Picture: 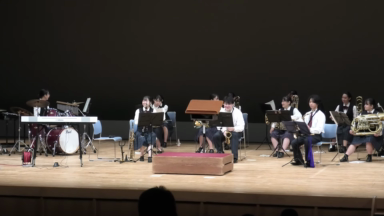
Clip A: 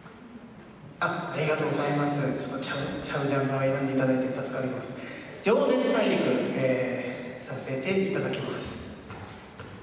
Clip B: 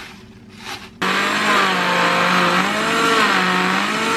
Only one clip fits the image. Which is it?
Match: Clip A